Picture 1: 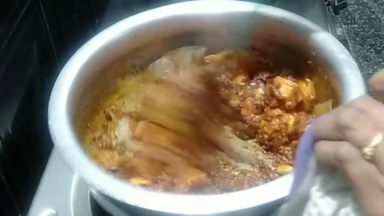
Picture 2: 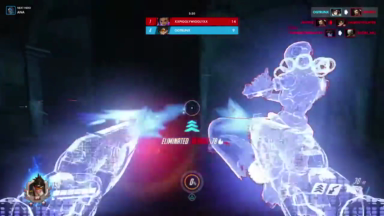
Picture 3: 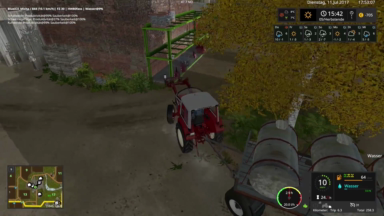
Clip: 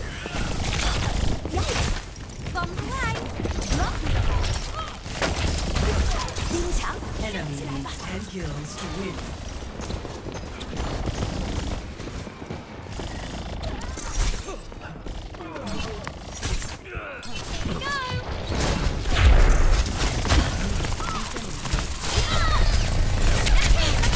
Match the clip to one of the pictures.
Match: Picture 2